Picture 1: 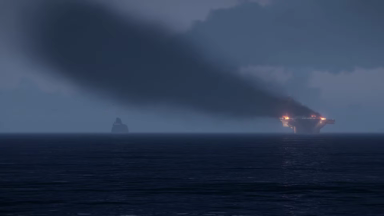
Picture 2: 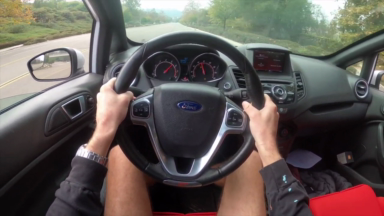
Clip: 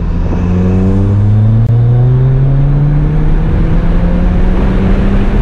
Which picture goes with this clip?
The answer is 2